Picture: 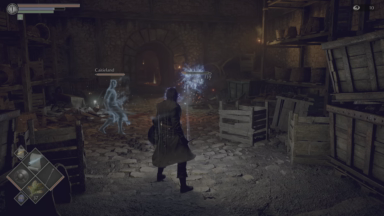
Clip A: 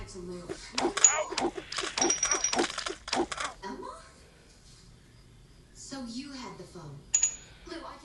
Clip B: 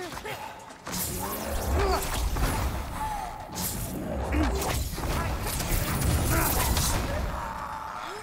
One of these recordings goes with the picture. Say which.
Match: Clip B